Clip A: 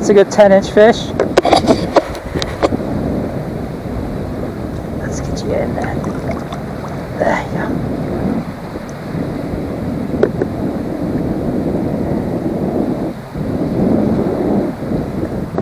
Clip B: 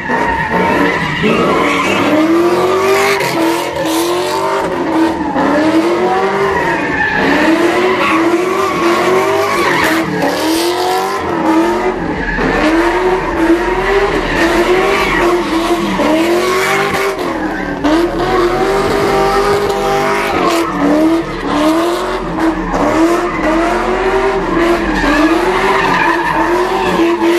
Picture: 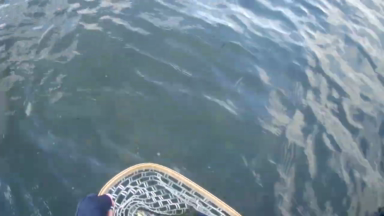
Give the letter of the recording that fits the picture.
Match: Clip A